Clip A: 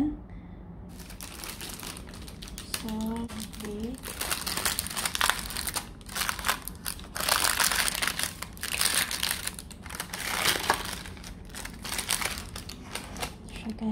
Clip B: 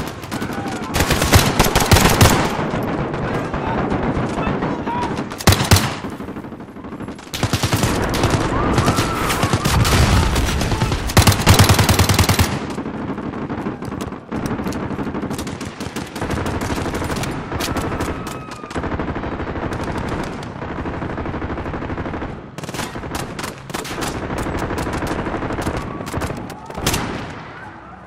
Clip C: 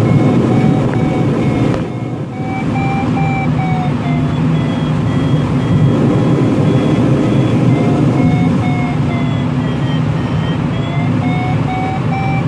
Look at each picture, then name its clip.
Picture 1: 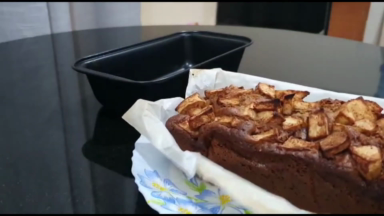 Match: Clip A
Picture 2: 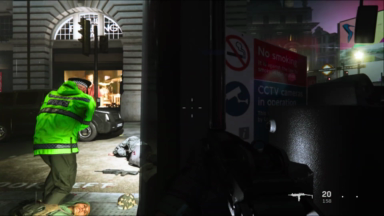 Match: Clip B